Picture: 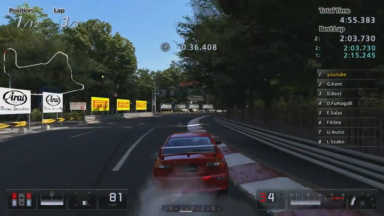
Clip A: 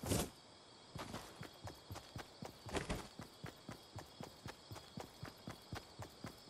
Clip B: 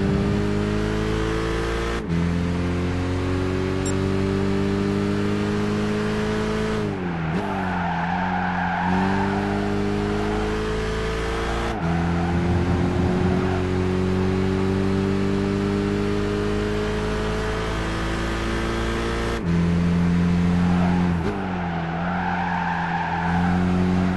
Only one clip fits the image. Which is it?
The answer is B